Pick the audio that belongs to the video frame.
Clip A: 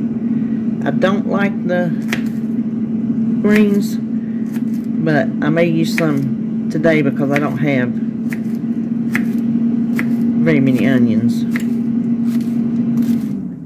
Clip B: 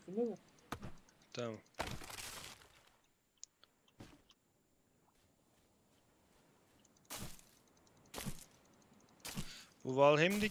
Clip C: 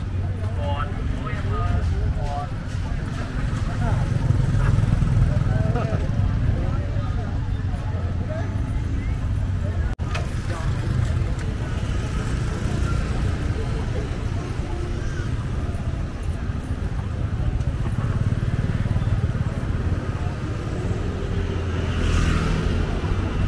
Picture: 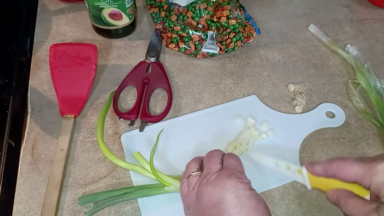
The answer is A